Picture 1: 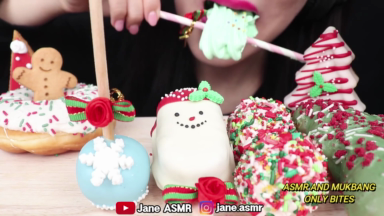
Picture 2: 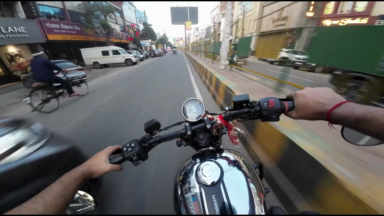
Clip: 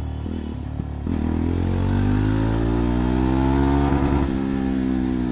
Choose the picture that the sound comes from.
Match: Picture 2